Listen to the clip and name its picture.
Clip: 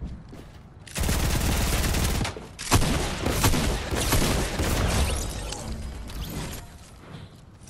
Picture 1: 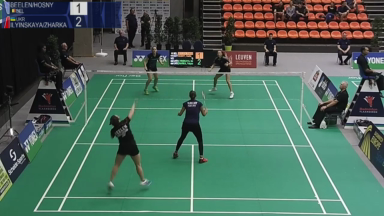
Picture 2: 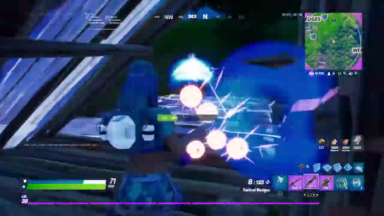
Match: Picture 2